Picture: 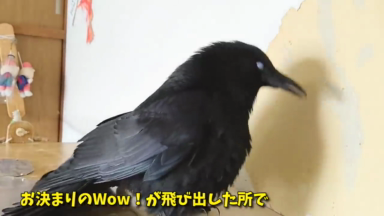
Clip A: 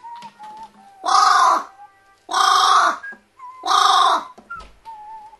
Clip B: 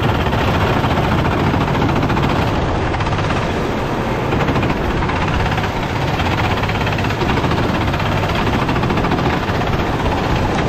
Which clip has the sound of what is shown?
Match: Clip A